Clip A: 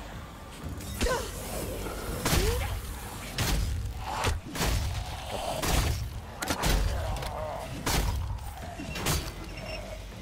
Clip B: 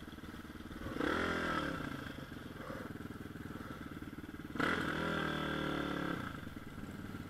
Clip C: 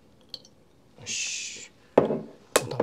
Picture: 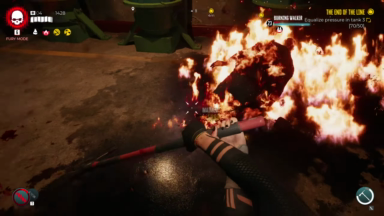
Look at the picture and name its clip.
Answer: A